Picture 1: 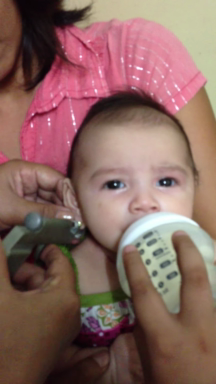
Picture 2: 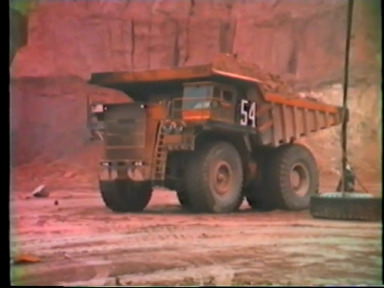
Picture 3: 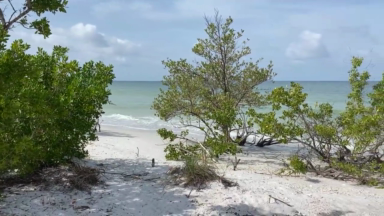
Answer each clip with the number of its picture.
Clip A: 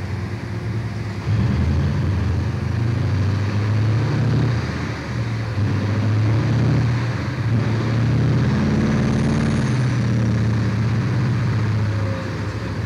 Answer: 2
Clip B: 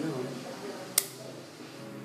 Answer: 1